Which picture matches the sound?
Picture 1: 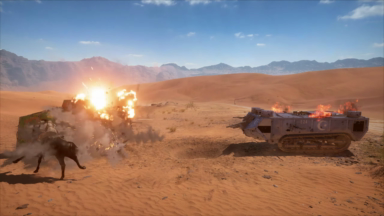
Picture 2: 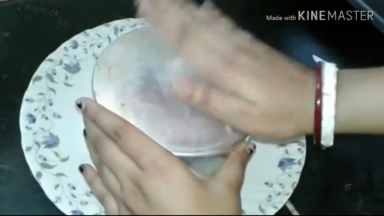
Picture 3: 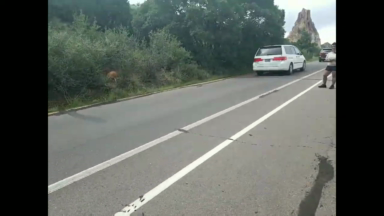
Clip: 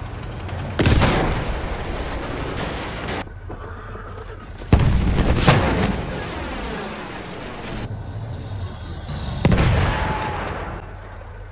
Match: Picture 1